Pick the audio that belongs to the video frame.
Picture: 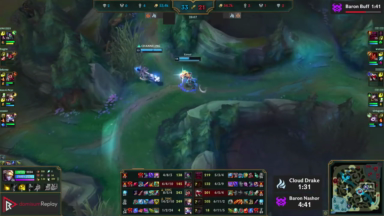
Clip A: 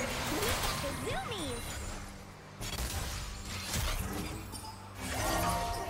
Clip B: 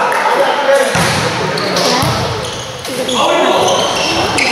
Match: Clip A